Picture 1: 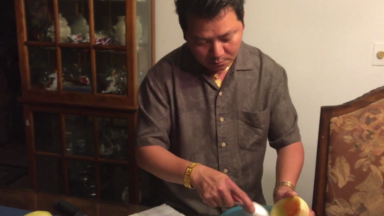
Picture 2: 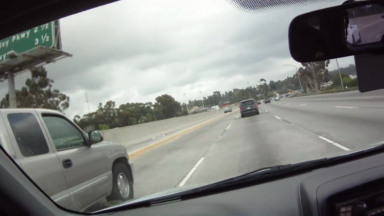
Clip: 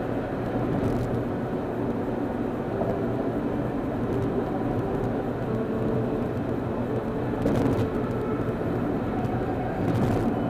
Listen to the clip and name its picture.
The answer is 2